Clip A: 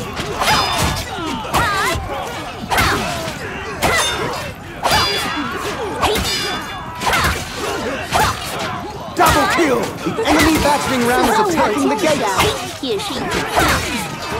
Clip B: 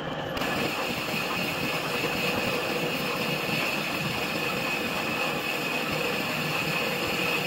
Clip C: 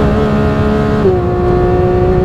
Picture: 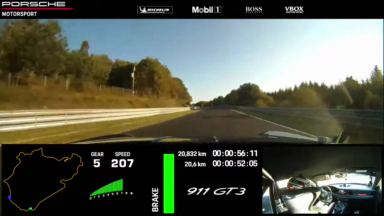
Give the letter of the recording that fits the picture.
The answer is C